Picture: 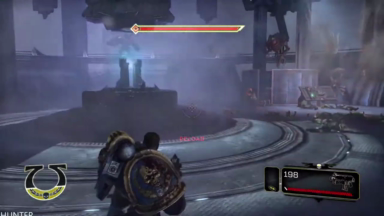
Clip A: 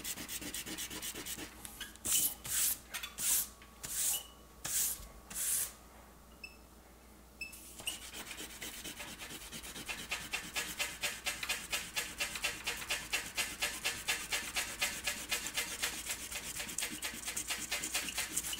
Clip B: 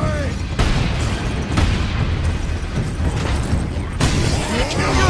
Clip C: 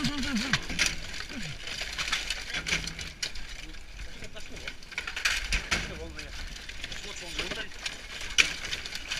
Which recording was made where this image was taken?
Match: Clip B